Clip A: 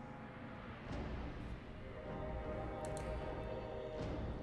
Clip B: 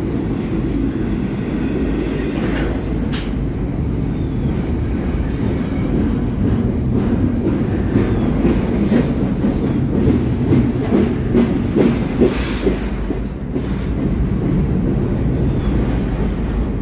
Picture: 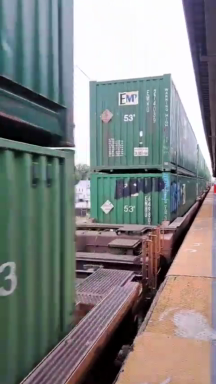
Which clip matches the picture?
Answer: B